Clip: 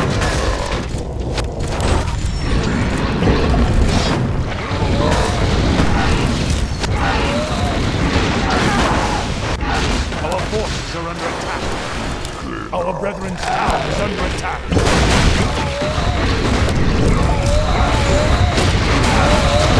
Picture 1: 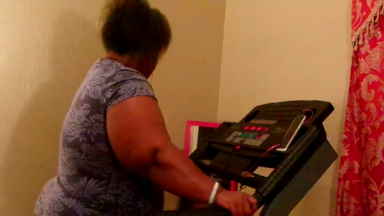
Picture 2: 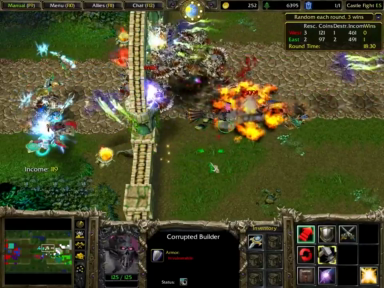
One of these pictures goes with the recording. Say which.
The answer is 2